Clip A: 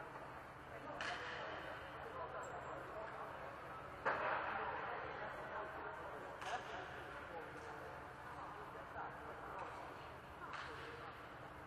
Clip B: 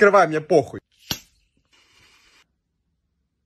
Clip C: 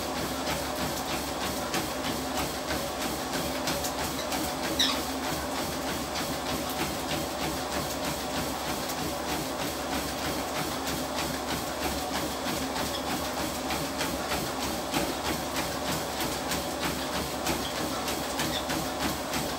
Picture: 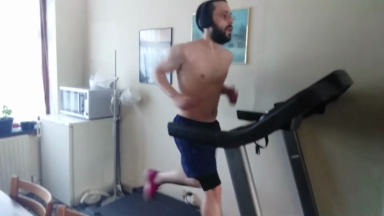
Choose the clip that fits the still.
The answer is C